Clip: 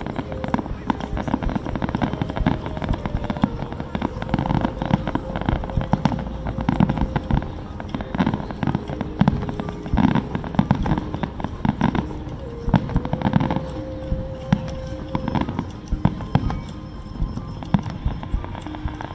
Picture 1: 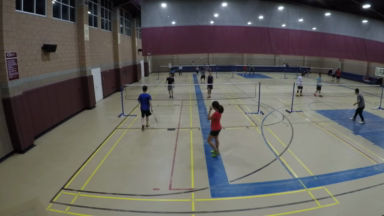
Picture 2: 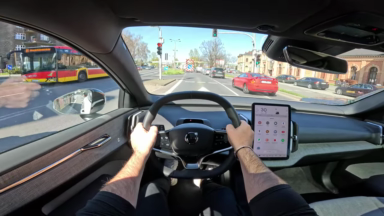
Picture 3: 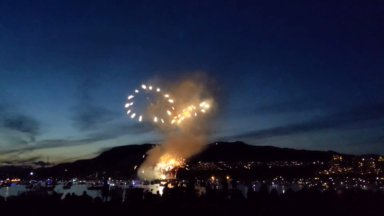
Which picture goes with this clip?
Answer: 3